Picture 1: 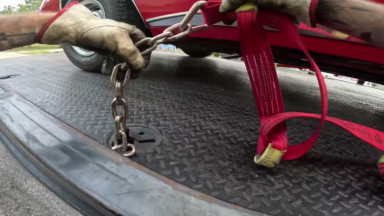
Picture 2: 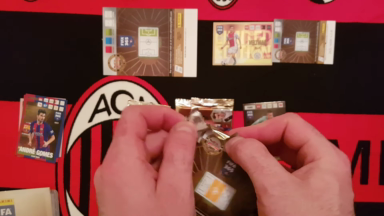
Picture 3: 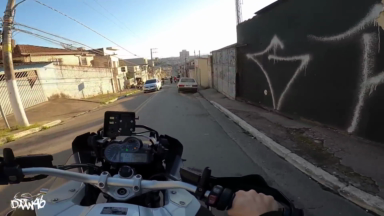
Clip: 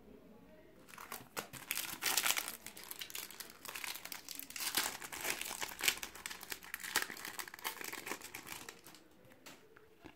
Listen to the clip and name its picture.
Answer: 2